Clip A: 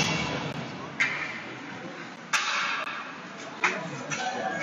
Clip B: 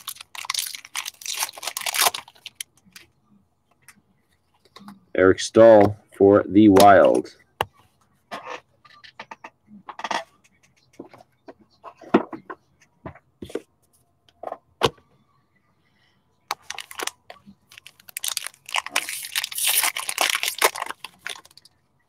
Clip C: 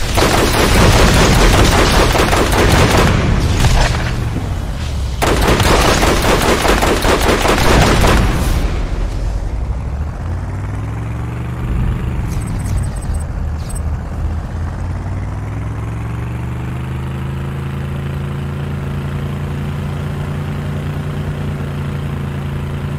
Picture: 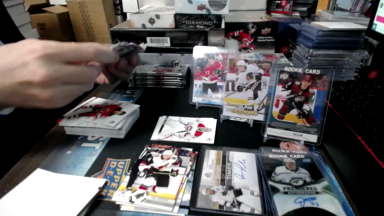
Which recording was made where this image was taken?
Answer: B